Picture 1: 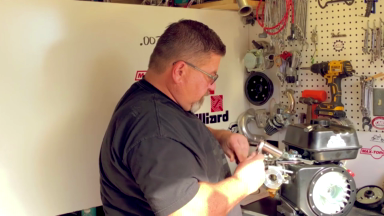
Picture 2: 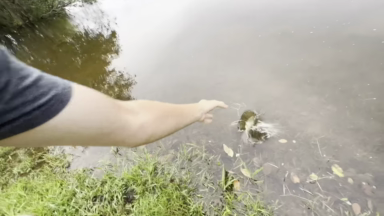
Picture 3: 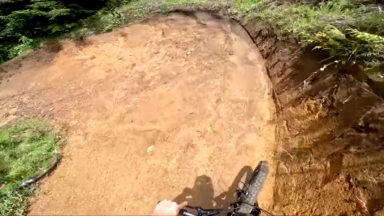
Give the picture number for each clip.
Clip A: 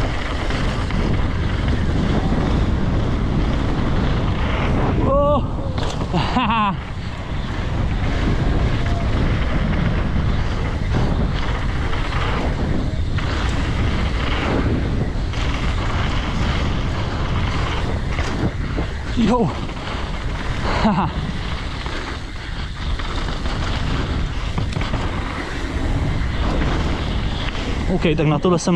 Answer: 3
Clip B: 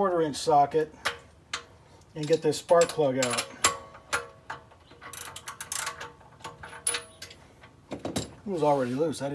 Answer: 1